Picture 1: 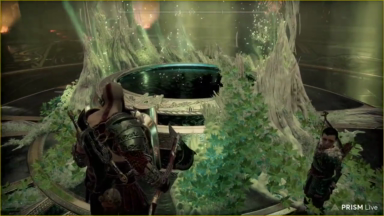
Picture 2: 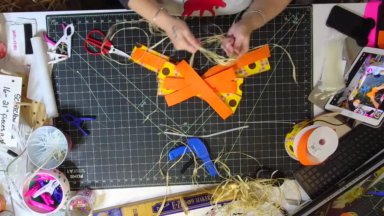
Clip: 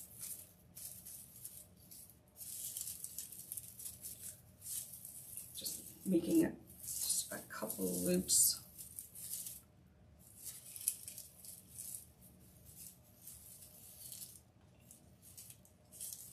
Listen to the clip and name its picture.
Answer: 2